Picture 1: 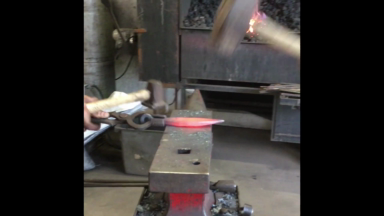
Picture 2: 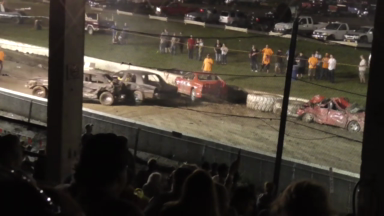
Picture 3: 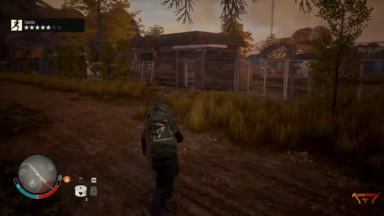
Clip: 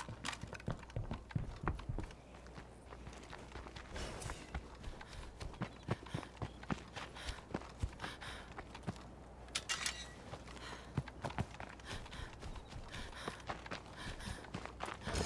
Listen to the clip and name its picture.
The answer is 3